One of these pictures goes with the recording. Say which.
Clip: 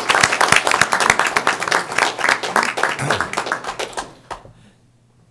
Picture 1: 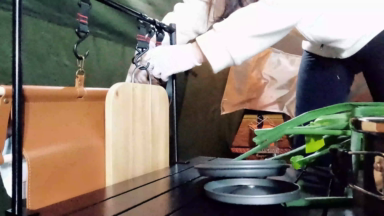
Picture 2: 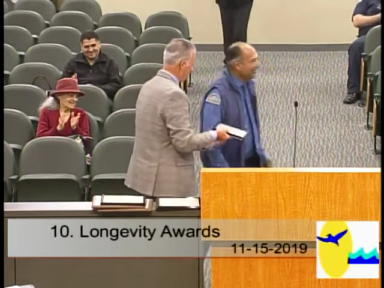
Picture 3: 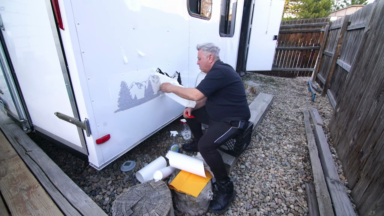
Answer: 2